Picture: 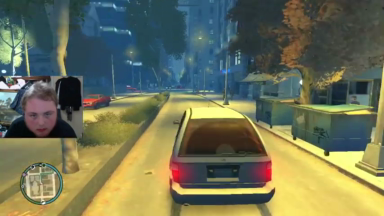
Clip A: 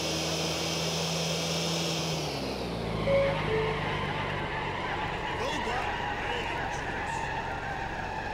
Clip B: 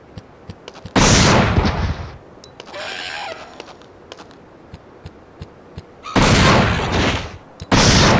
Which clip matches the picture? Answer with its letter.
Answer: A